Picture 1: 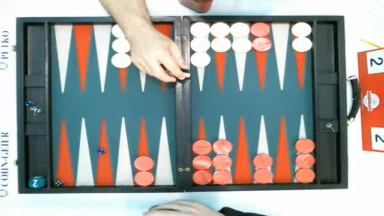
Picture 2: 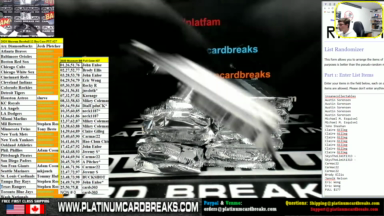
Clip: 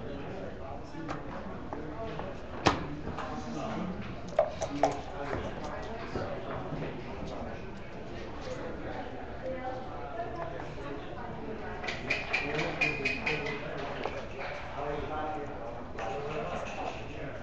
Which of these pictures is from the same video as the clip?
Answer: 1